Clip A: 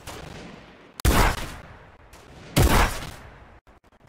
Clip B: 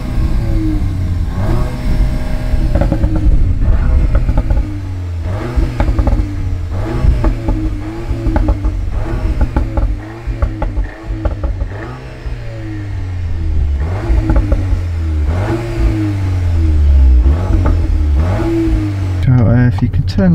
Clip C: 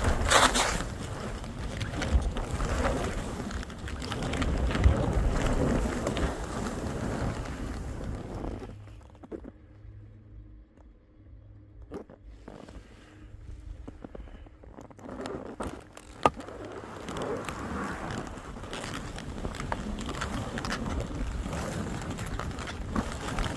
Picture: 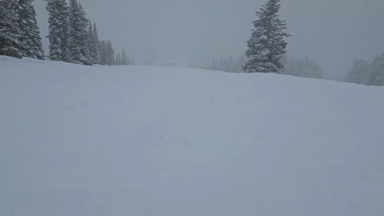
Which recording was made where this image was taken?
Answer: C